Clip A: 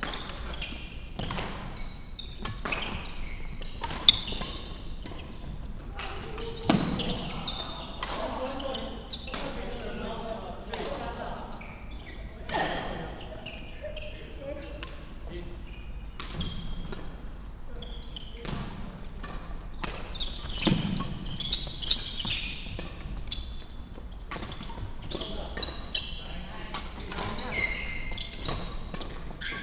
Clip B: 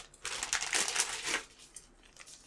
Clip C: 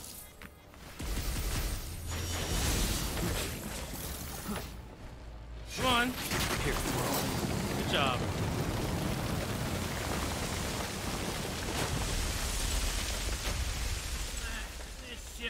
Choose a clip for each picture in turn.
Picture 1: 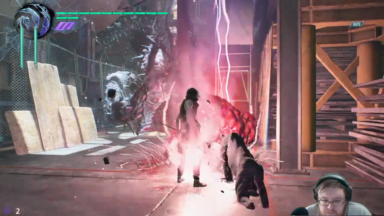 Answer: C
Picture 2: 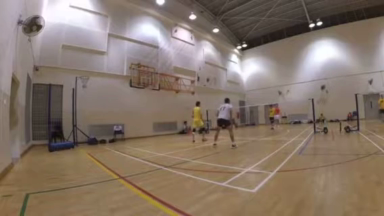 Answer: A